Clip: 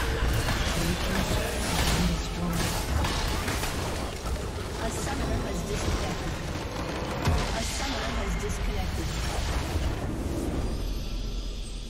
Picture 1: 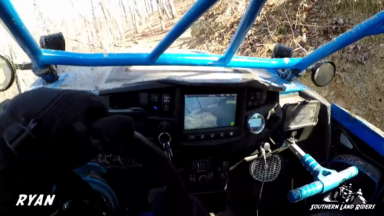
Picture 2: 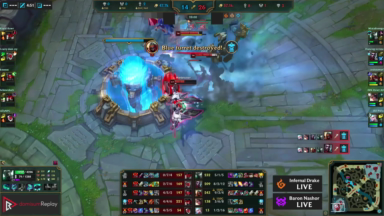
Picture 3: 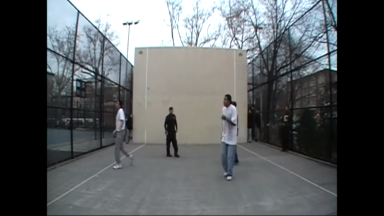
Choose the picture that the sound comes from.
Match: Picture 2